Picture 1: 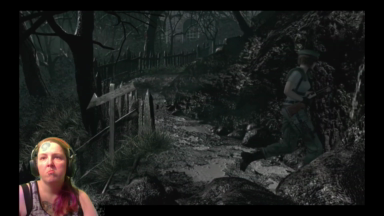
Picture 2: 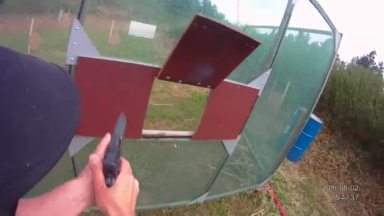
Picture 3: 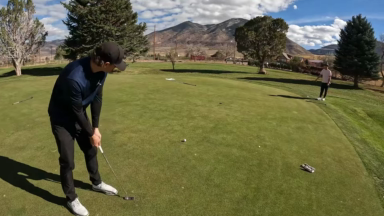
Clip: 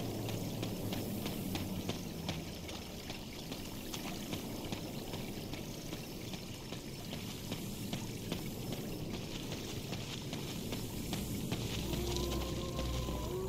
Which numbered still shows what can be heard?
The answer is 1